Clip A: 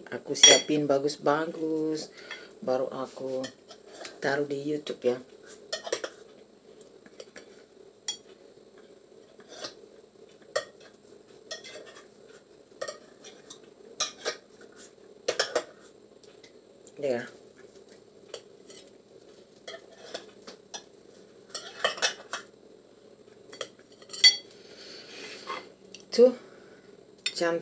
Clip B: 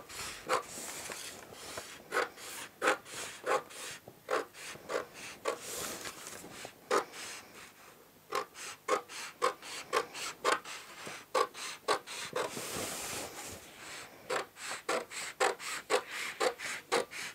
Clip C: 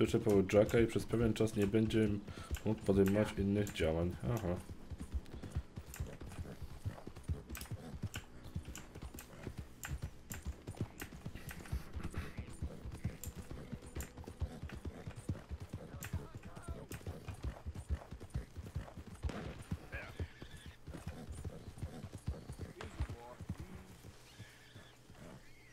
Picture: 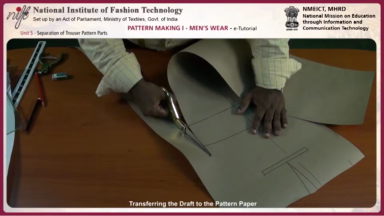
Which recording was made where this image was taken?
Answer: B